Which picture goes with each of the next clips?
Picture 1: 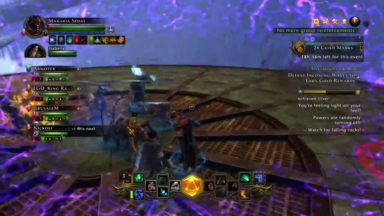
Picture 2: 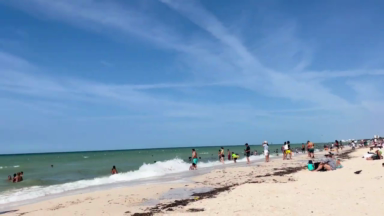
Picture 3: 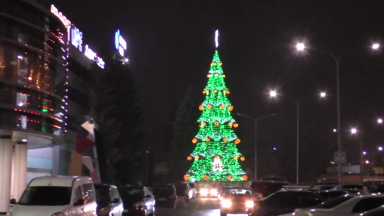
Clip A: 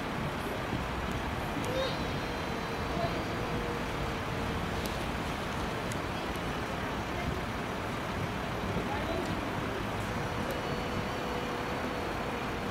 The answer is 3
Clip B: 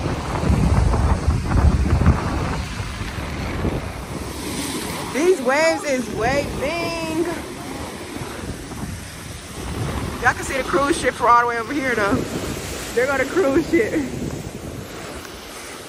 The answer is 2